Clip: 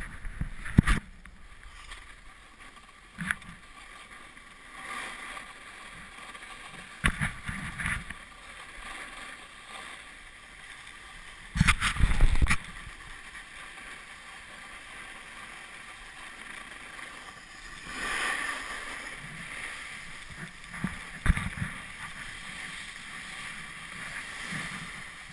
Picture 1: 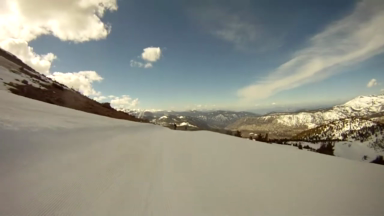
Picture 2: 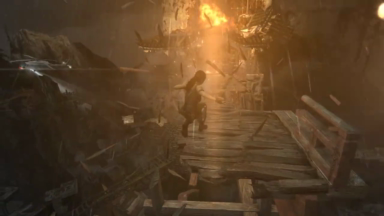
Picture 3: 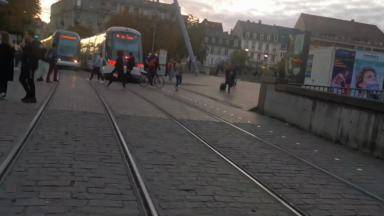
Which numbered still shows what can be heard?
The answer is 1